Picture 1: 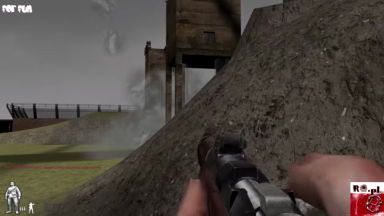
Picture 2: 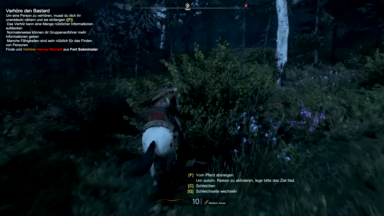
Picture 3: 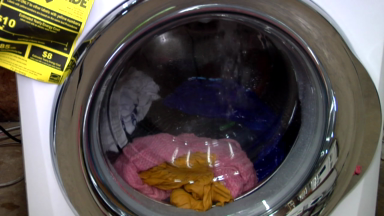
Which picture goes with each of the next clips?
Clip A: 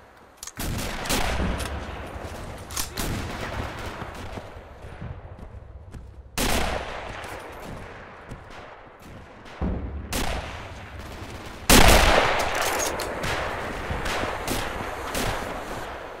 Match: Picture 1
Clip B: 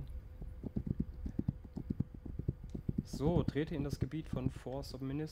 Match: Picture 2